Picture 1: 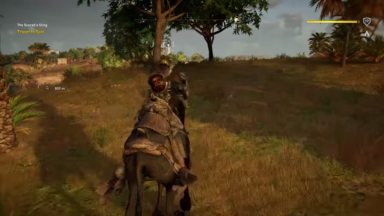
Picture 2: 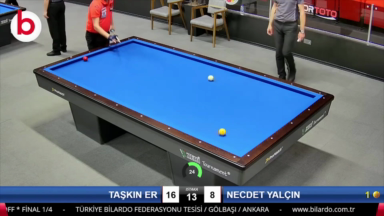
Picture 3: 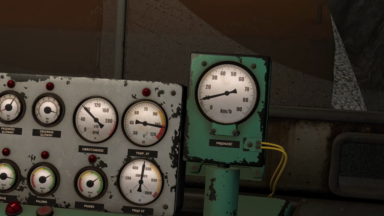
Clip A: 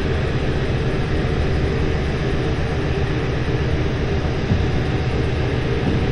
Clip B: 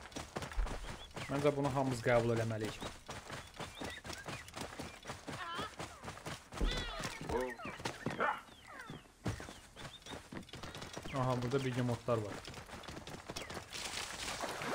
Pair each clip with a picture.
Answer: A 3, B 1